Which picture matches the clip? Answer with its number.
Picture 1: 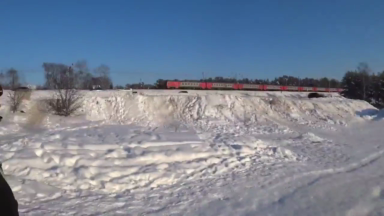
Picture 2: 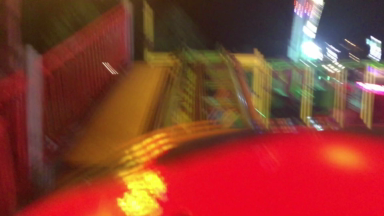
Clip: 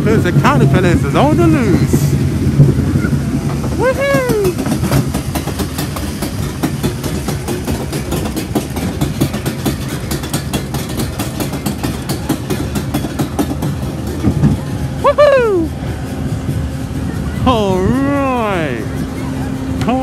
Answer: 2